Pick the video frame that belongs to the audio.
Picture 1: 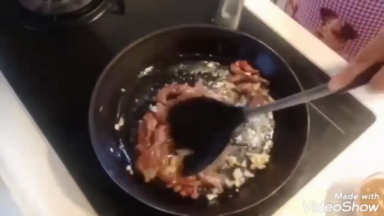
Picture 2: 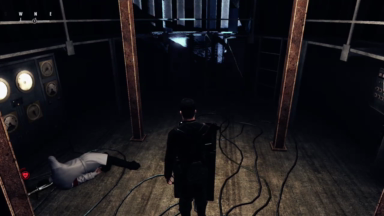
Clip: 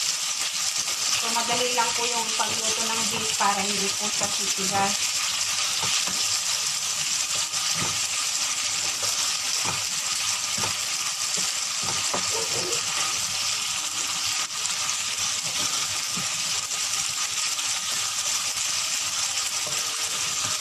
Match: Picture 1